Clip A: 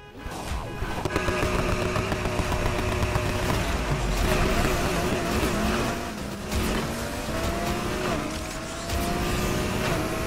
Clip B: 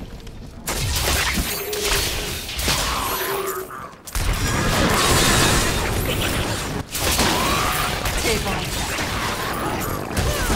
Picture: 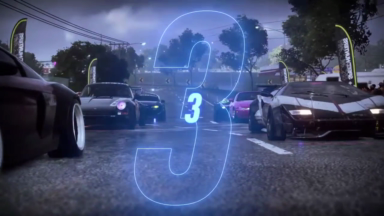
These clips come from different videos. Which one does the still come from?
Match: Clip A